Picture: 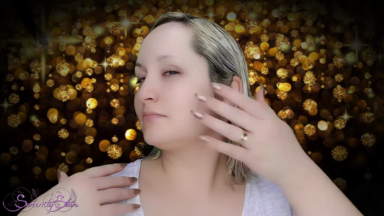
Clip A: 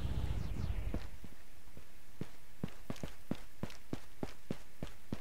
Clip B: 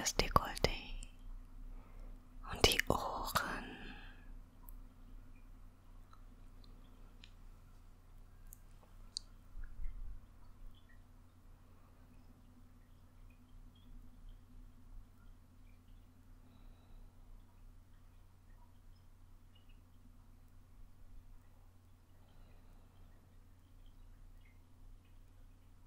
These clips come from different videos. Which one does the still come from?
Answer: B